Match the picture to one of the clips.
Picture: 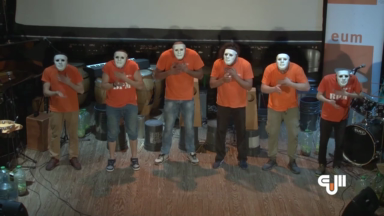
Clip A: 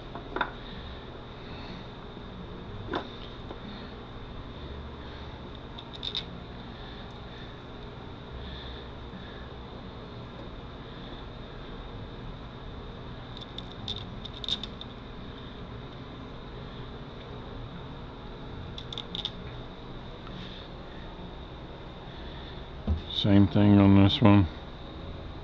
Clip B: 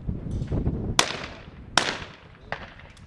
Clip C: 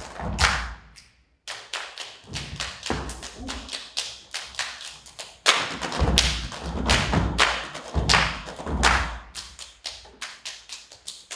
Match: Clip C